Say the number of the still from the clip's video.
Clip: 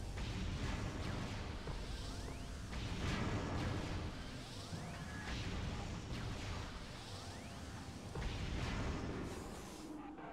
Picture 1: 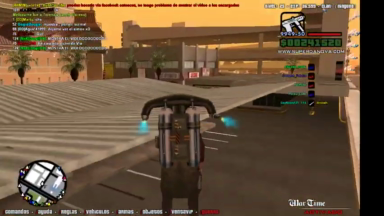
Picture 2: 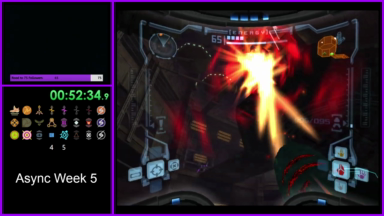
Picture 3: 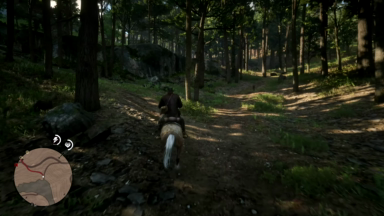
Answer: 2